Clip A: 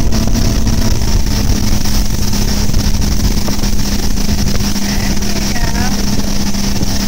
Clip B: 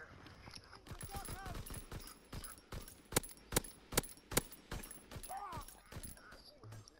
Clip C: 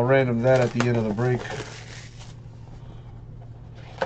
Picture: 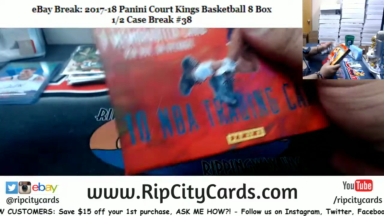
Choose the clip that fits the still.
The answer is C